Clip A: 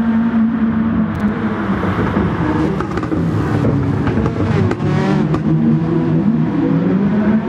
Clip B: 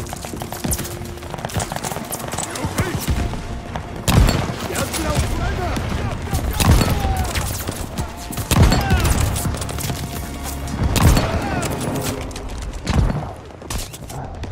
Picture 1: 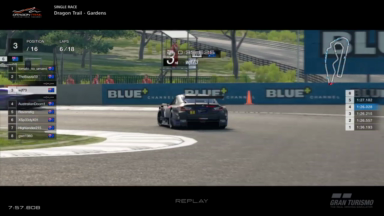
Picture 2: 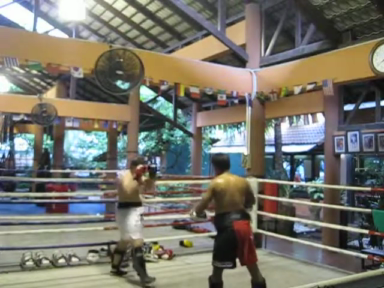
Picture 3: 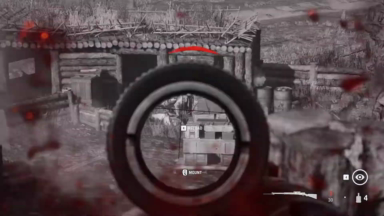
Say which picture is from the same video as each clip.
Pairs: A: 1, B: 3